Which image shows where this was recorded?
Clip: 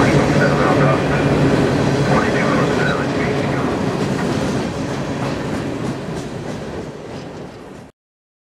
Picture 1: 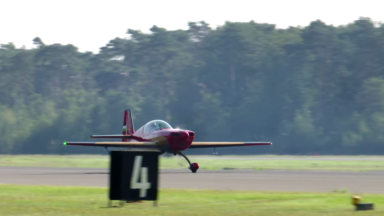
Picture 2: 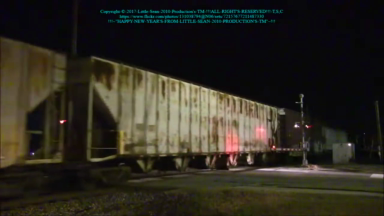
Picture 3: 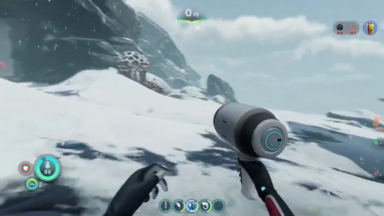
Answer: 2